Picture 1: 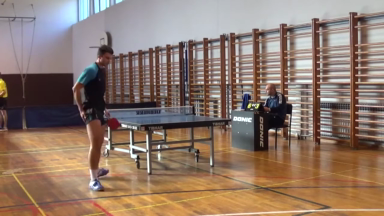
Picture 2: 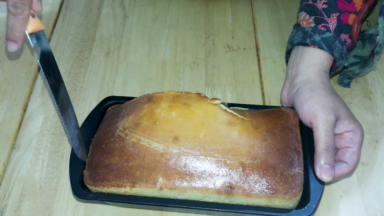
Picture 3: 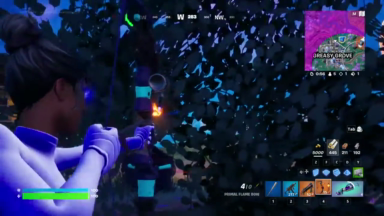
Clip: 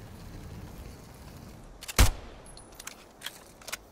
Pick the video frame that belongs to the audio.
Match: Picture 3